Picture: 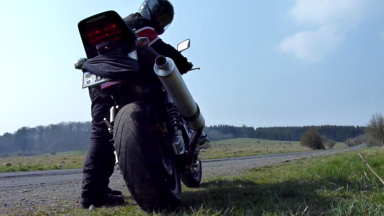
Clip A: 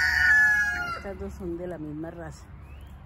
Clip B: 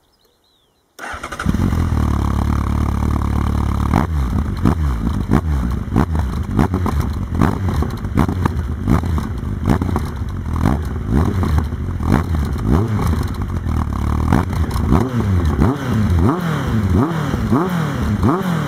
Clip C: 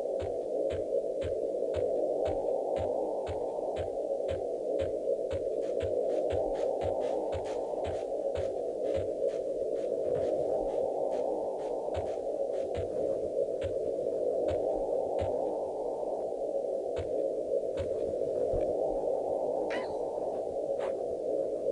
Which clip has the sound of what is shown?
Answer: B